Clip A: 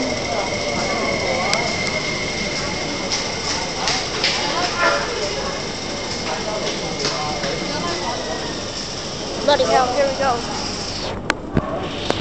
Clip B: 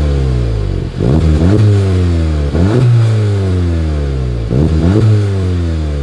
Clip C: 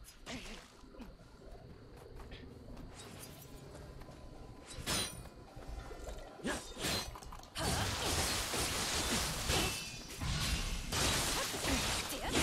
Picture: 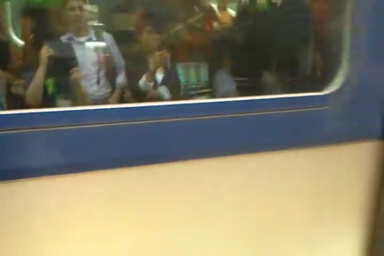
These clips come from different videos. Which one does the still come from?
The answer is A